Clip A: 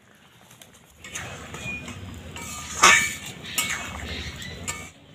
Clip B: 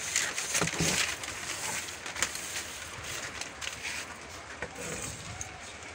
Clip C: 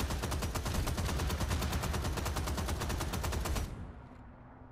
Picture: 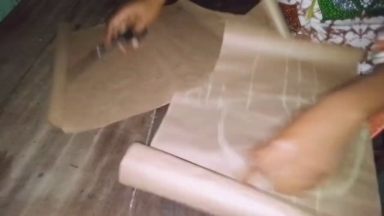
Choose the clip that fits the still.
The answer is B